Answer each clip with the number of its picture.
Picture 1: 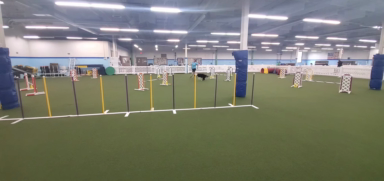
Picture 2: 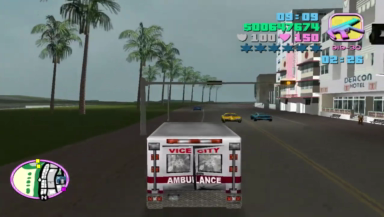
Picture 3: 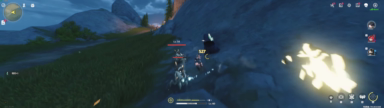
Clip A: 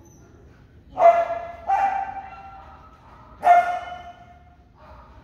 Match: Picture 1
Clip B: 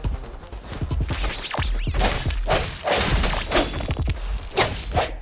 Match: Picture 3